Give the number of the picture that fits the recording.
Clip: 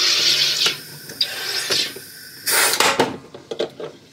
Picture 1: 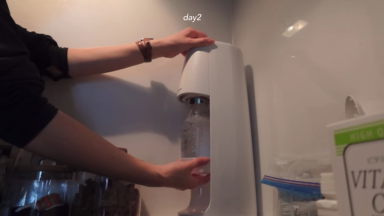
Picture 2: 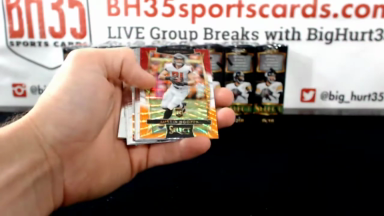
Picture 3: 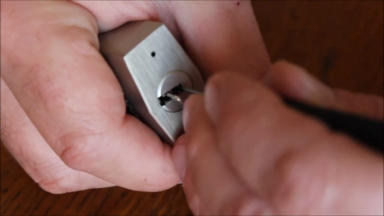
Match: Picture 1